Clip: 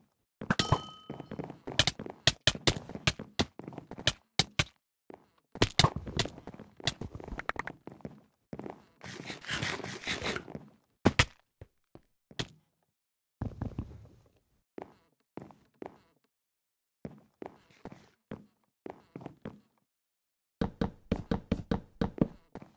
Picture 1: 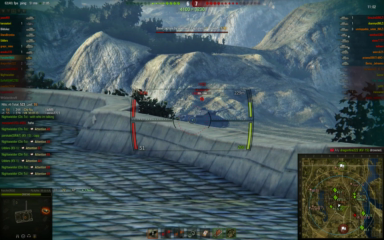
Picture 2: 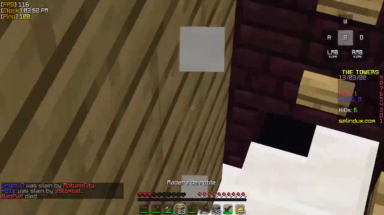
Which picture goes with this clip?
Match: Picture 2